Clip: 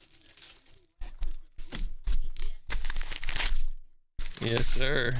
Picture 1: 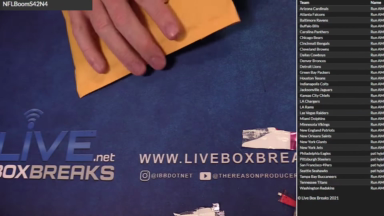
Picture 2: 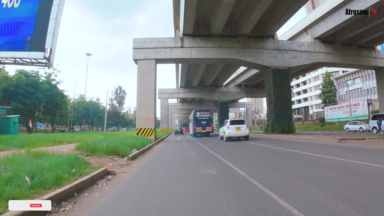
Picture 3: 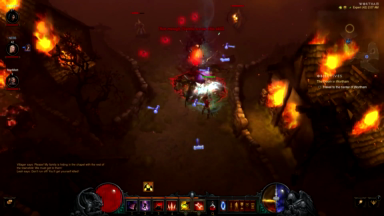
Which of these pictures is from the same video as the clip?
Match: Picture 1